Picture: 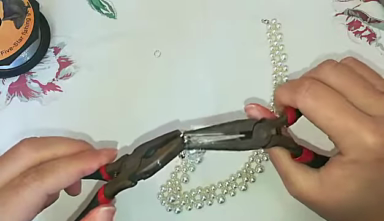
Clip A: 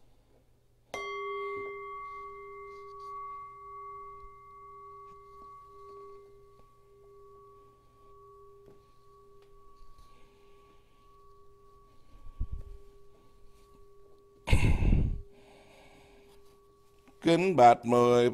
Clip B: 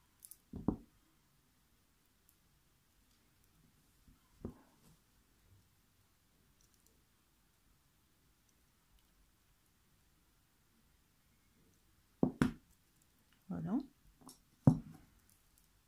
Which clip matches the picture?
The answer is B